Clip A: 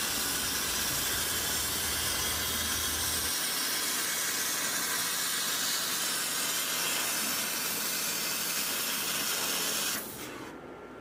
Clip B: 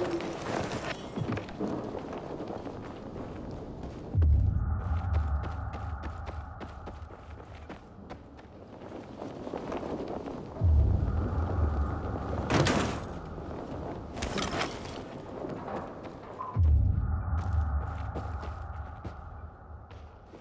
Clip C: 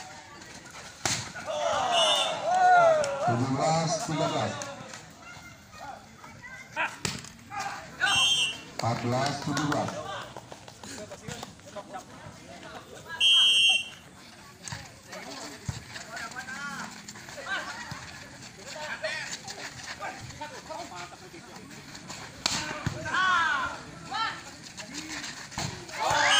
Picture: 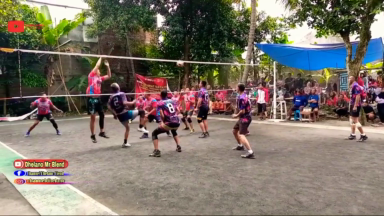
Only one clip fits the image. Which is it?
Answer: C